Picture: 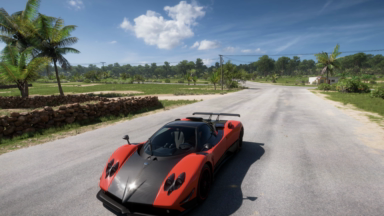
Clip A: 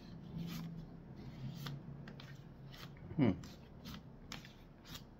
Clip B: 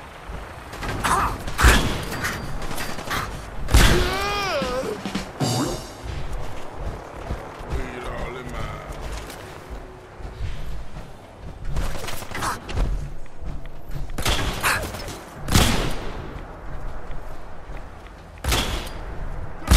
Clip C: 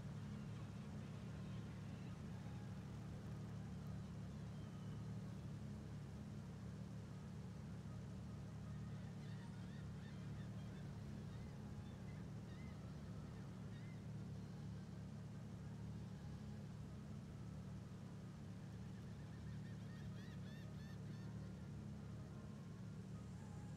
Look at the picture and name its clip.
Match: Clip C